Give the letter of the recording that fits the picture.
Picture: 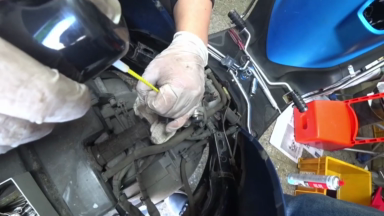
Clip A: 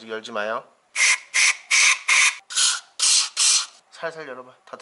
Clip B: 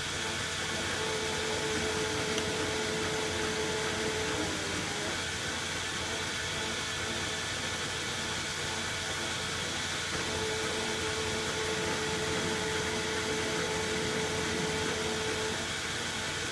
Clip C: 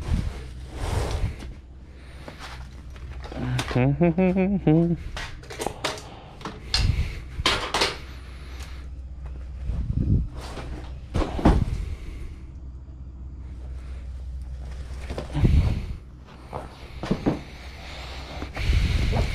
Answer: A